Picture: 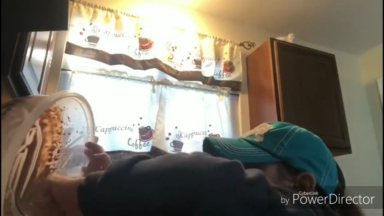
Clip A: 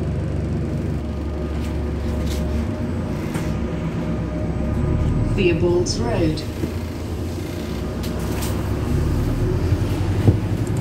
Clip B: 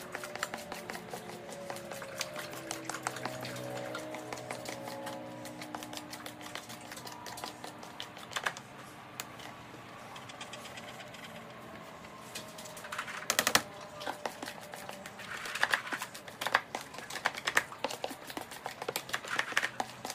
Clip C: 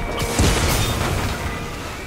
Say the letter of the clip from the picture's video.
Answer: B